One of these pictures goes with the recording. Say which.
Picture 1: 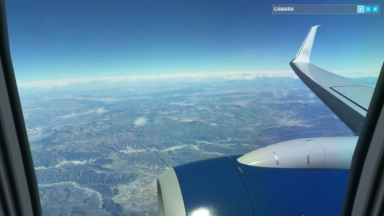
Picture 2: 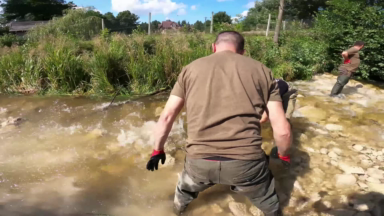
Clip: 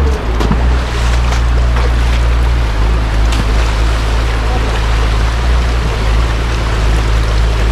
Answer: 2